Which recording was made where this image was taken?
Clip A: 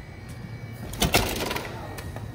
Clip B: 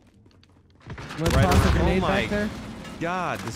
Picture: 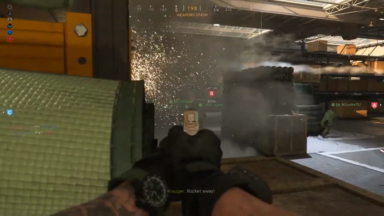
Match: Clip B